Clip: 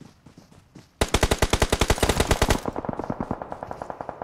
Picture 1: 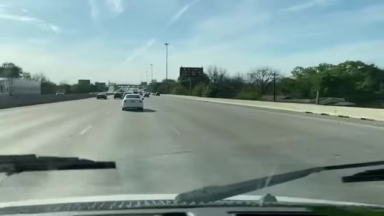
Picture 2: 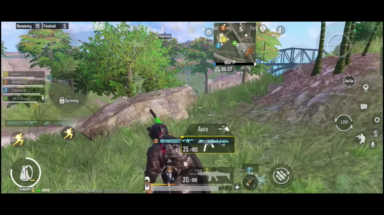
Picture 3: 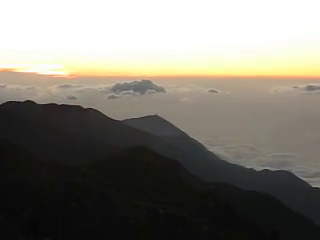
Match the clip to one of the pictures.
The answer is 2